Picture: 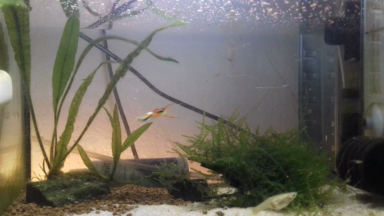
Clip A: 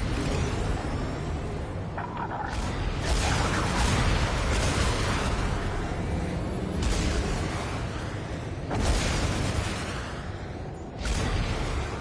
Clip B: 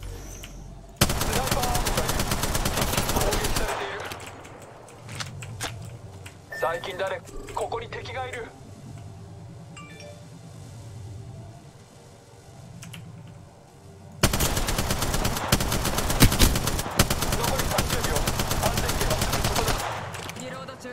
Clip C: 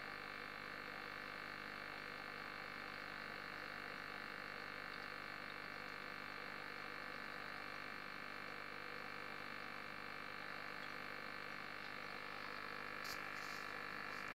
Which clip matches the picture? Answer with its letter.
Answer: C